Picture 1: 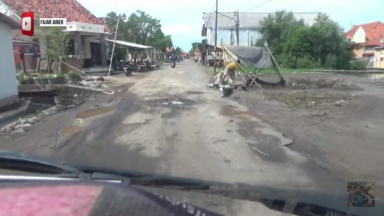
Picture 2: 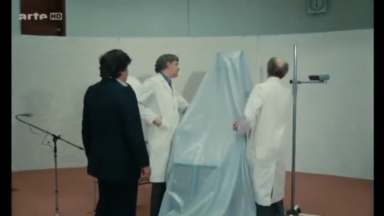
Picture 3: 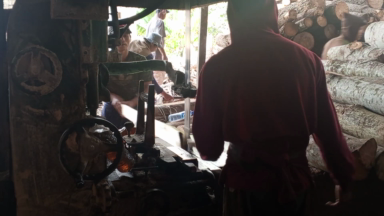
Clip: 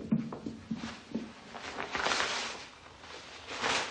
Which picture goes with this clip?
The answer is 2